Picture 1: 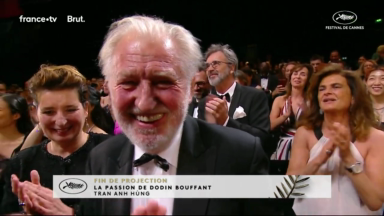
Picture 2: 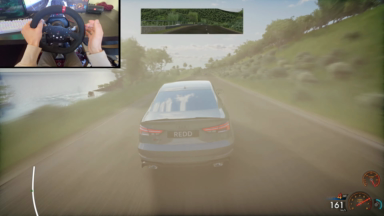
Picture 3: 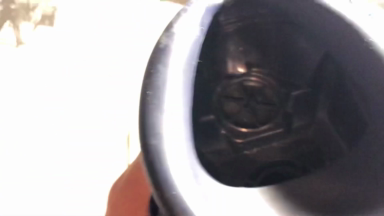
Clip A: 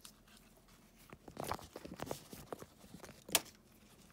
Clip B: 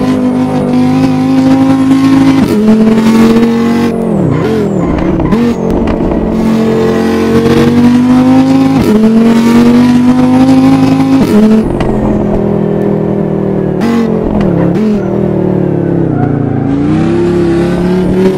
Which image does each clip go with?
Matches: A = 3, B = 2